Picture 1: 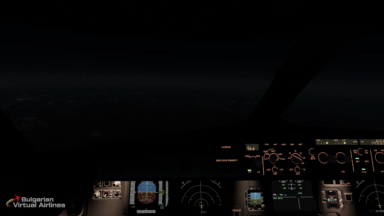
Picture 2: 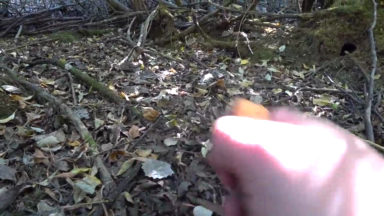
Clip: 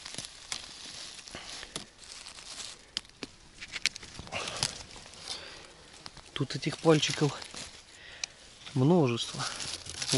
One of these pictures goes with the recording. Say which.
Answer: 2